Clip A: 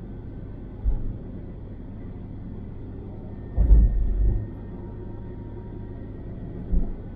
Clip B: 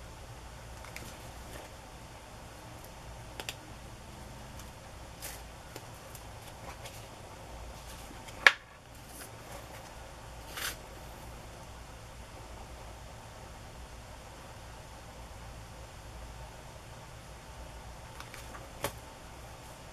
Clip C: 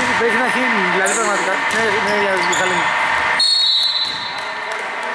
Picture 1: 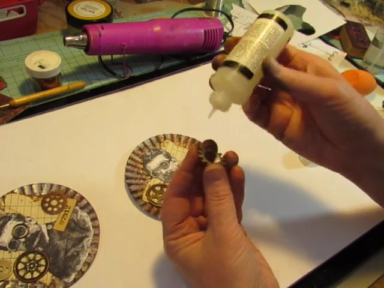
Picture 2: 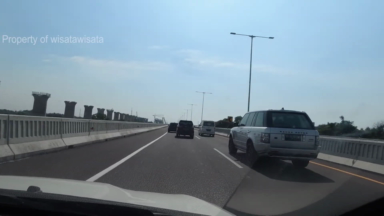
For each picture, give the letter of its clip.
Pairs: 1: B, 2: A